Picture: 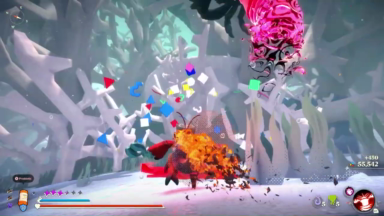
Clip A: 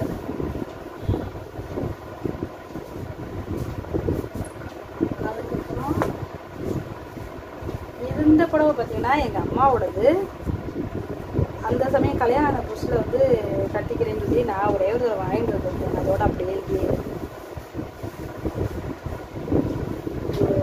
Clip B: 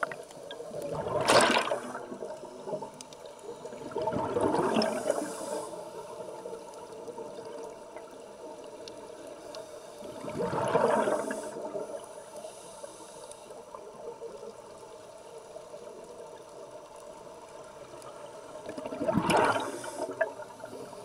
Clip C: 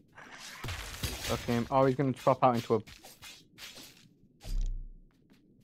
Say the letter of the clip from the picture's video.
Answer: C